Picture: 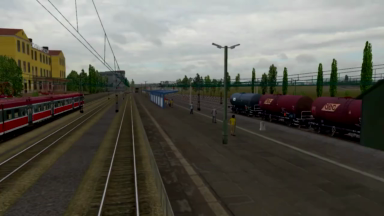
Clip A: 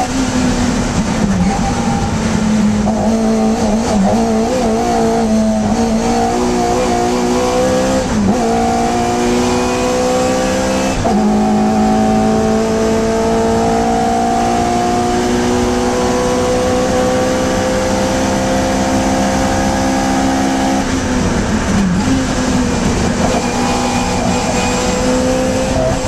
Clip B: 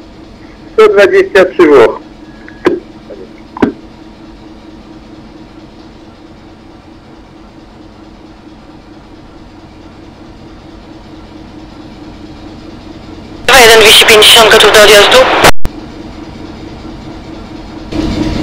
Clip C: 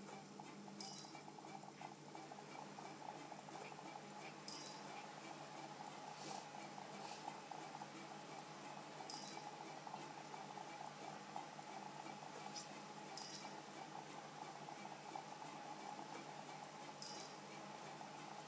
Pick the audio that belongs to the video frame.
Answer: B